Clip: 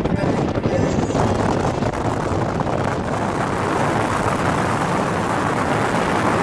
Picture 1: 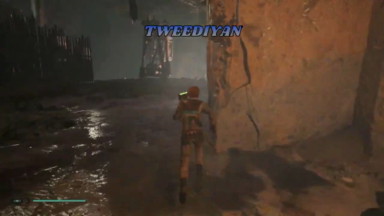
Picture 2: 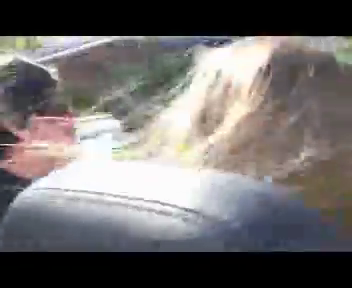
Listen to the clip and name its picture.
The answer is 2